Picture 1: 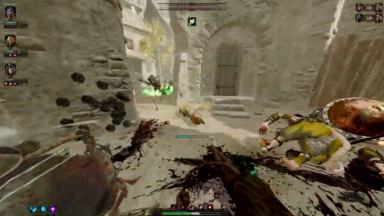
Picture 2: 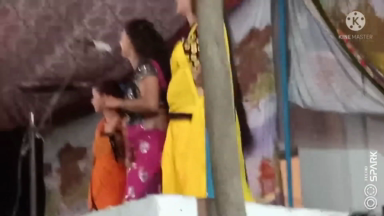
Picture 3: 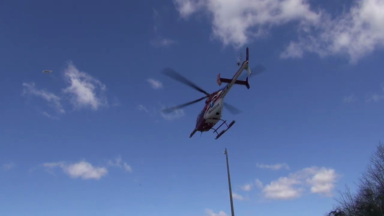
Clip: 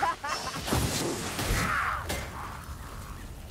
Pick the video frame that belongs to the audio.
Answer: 1